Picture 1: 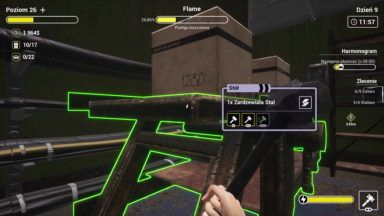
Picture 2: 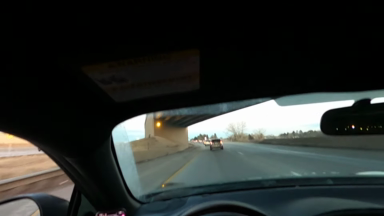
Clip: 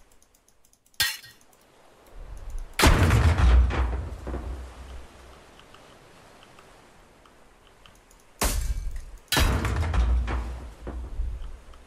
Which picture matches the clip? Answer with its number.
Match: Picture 1